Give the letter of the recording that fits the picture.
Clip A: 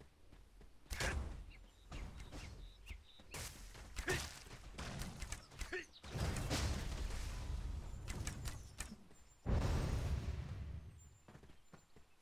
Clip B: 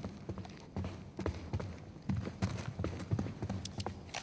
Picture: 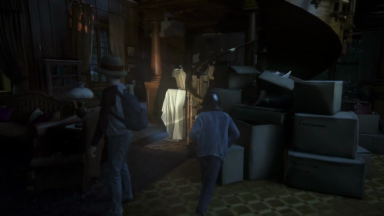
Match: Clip B